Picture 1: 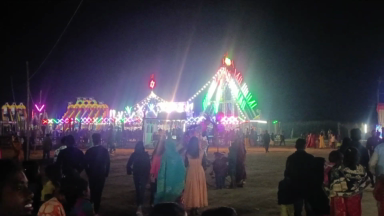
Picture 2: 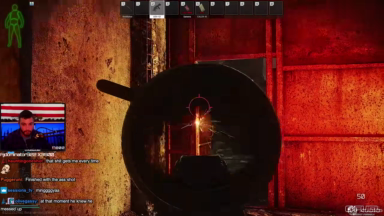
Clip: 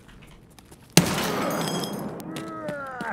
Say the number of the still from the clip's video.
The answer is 2